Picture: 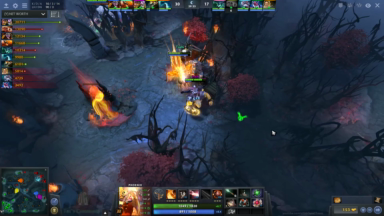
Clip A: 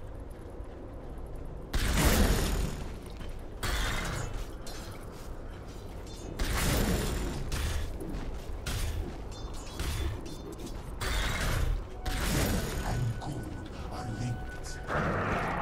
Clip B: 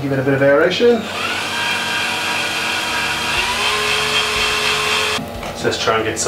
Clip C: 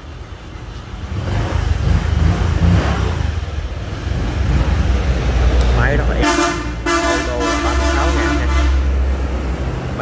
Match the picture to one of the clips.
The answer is A